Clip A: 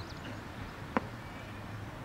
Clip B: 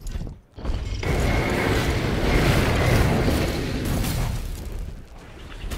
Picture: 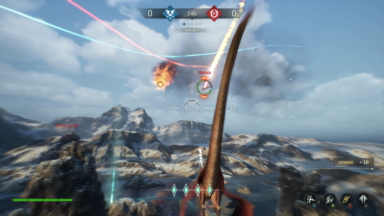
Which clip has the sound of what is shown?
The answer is B